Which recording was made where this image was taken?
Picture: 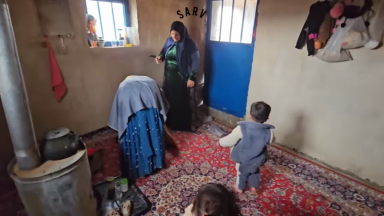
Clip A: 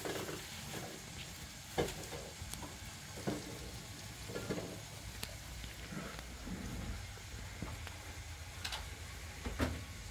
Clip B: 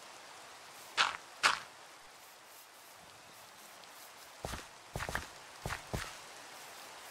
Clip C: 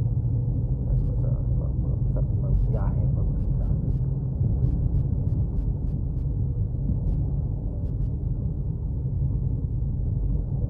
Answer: A